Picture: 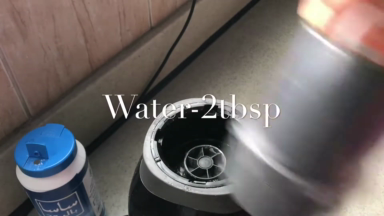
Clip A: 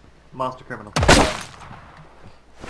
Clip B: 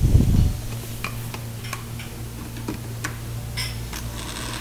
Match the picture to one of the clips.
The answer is B